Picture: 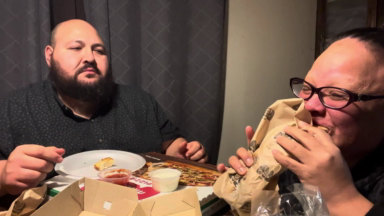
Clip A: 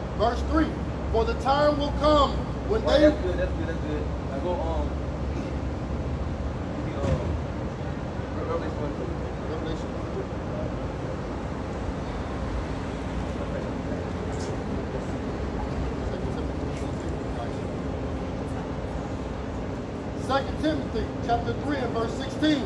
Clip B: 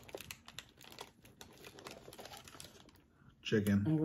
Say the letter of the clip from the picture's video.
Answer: B